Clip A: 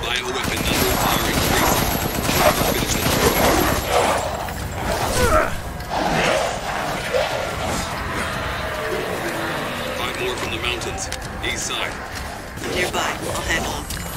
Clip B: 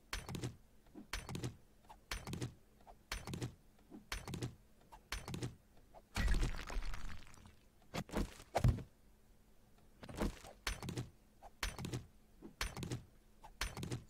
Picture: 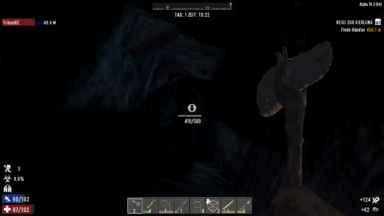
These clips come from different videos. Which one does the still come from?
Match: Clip B